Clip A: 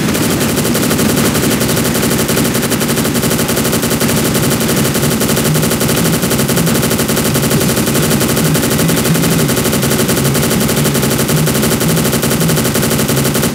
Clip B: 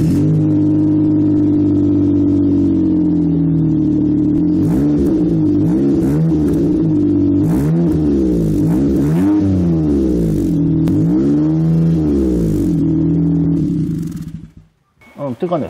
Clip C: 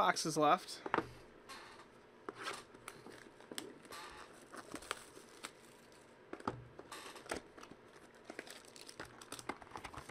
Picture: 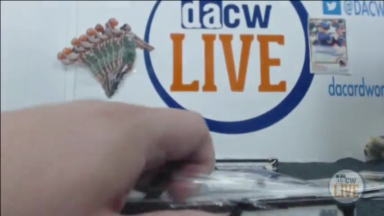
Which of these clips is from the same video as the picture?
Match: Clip C